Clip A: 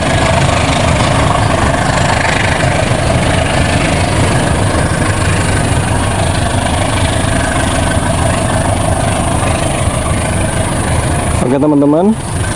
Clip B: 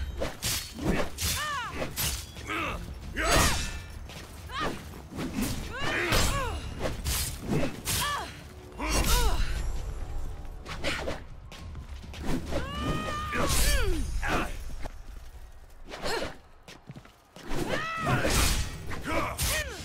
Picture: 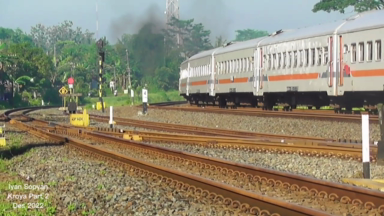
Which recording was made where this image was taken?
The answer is A